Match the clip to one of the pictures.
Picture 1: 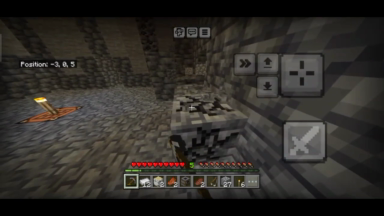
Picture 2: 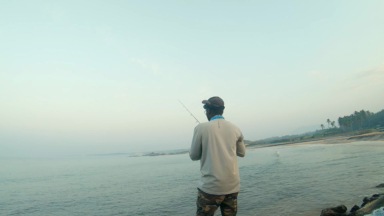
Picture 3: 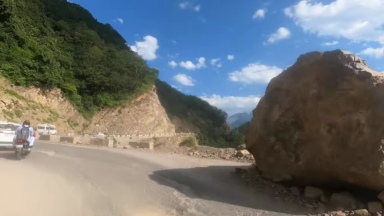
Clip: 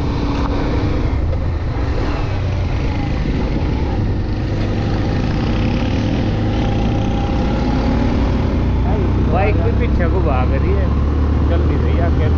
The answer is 3